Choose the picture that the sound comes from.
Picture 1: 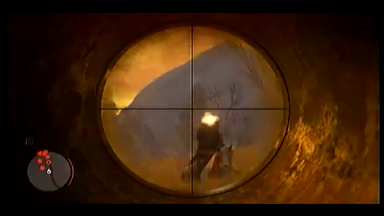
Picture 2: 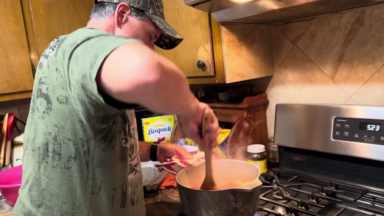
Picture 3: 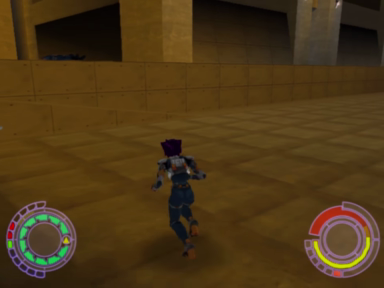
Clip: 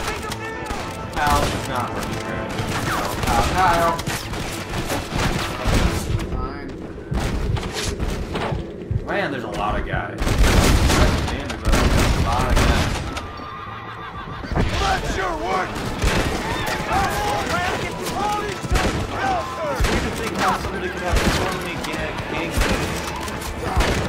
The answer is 1